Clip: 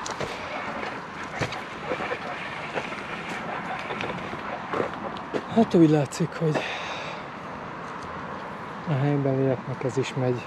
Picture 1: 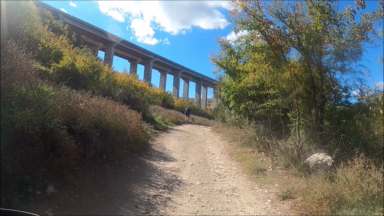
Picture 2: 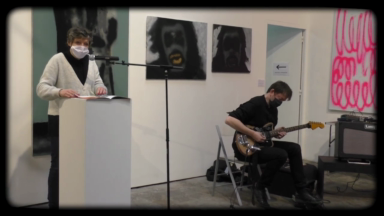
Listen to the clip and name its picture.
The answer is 1